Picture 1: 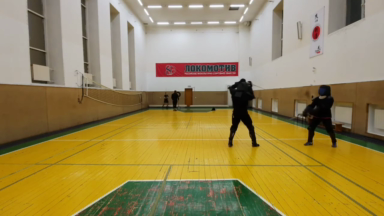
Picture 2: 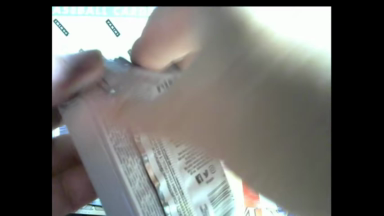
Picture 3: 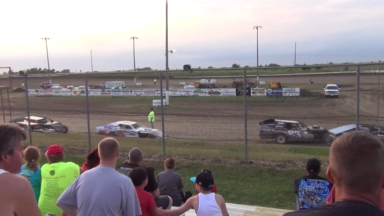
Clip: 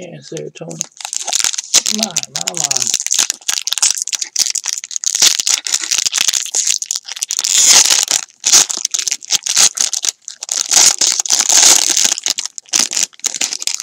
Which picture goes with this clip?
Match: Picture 2